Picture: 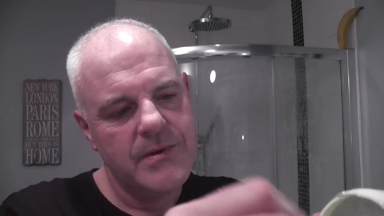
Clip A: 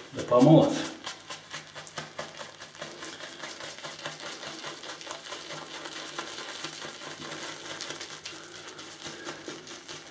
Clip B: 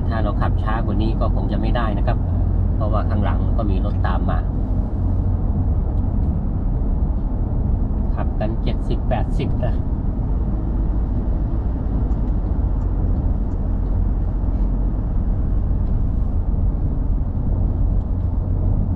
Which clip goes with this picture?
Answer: A